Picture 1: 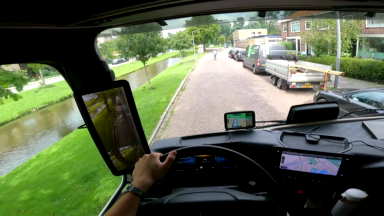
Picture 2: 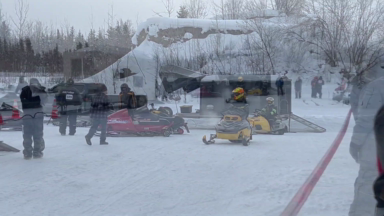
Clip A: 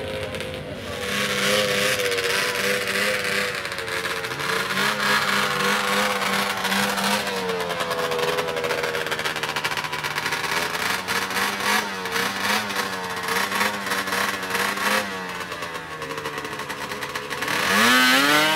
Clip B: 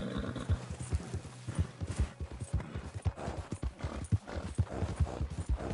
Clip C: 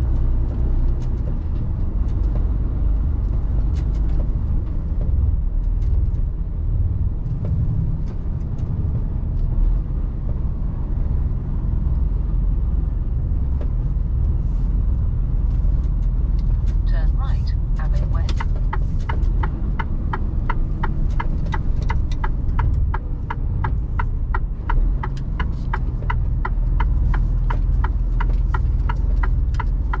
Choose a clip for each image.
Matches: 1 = C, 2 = A